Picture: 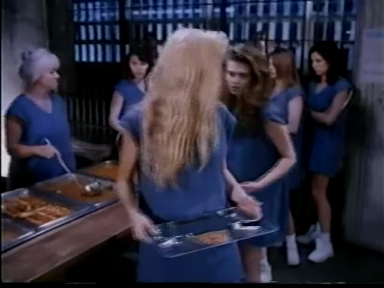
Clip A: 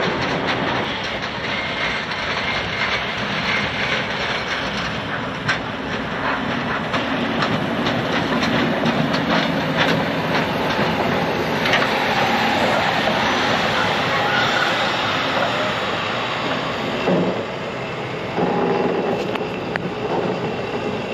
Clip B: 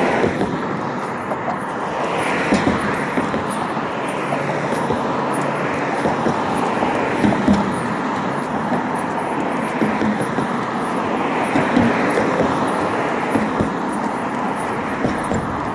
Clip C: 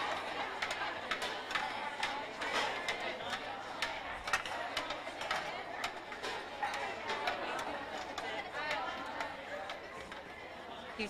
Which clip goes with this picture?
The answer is C